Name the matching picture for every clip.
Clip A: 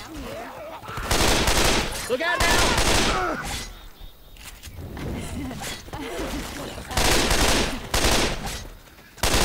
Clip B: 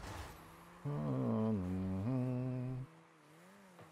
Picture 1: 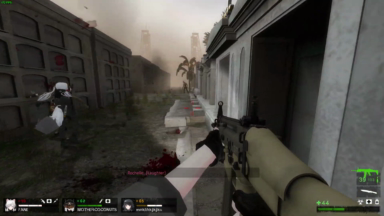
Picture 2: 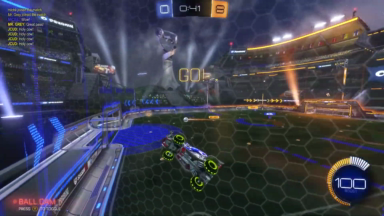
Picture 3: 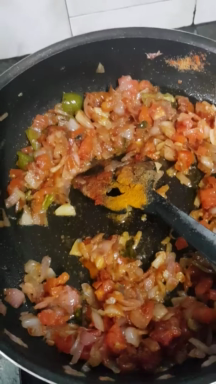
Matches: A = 1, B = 2